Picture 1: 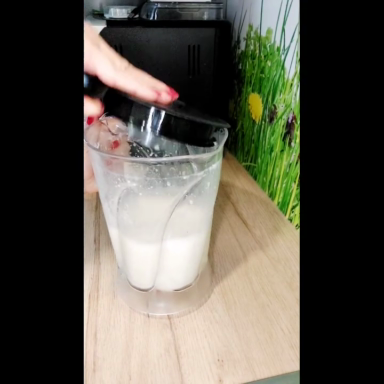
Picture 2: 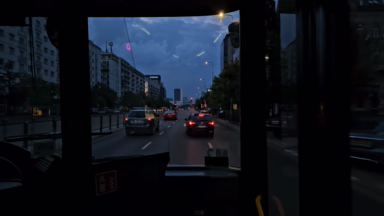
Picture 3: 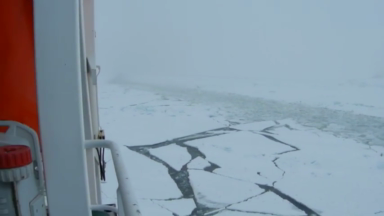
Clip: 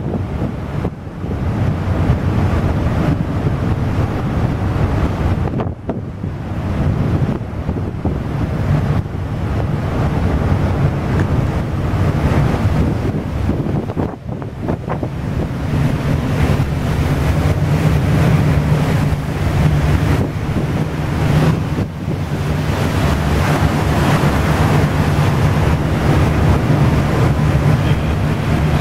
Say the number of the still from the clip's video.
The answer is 3